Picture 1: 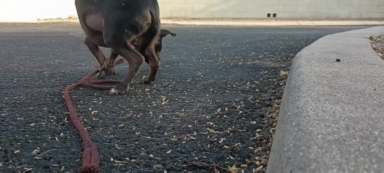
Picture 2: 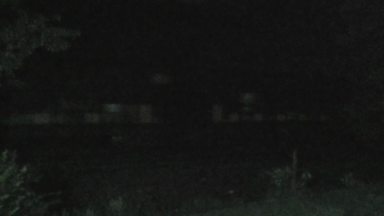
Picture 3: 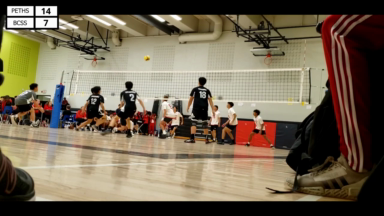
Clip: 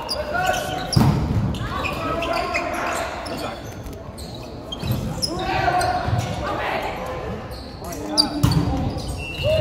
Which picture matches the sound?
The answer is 3